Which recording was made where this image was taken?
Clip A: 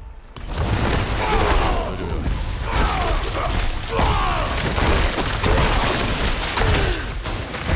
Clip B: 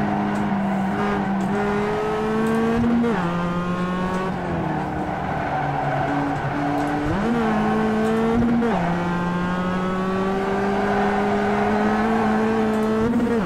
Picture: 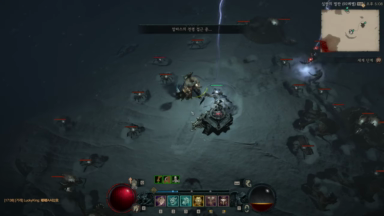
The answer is A